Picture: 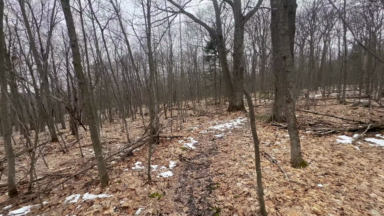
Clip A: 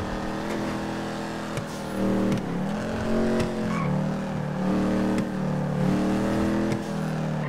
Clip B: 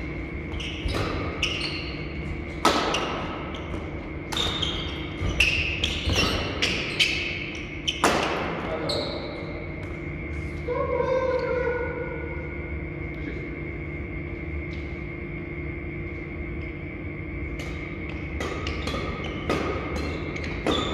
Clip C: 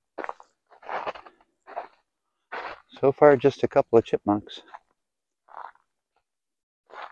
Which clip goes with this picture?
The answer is C